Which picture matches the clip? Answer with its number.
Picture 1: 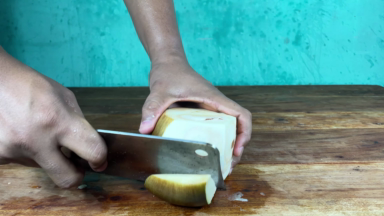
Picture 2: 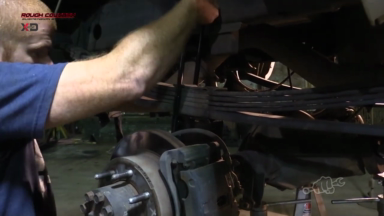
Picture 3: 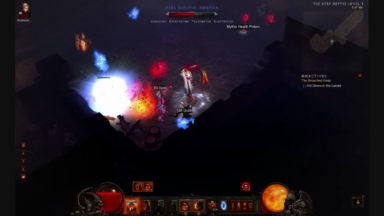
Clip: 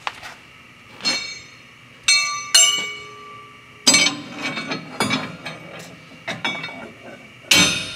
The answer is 2